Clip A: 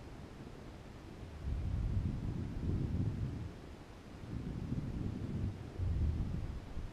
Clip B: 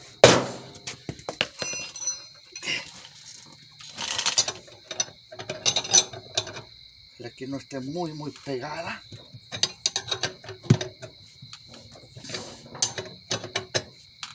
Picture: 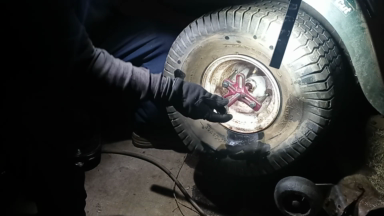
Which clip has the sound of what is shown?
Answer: B